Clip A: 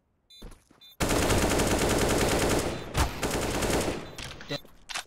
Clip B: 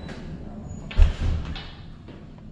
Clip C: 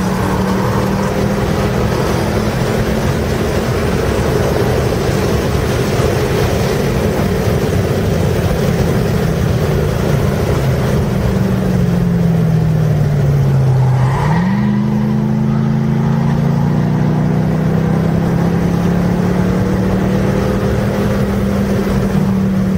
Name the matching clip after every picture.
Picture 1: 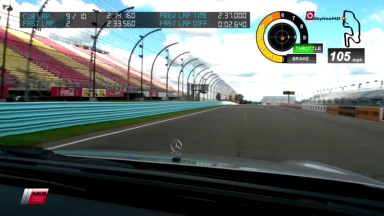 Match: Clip C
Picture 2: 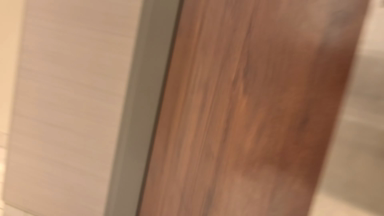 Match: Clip B